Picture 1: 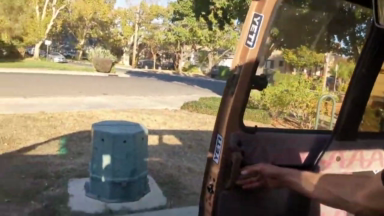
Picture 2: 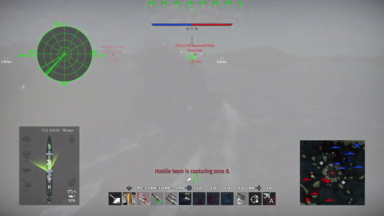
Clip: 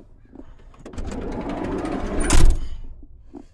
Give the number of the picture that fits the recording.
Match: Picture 1